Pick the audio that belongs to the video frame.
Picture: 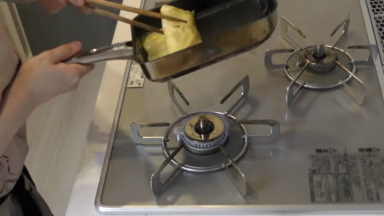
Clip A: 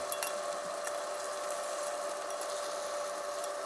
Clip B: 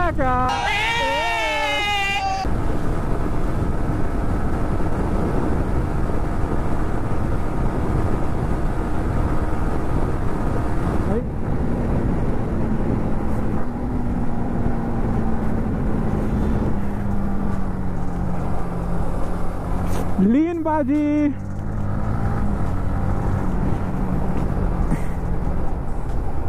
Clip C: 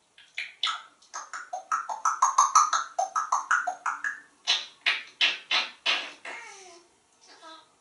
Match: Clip A